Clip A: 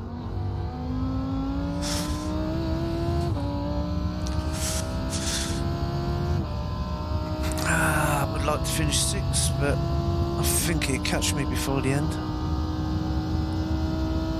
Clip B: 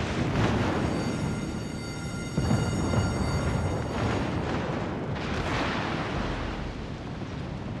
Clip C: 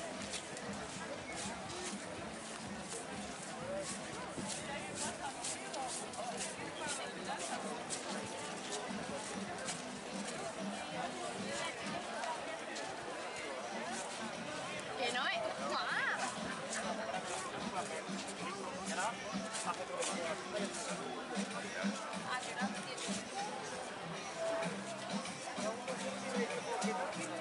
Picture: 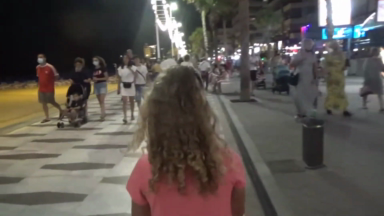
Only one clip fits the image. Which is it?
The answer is C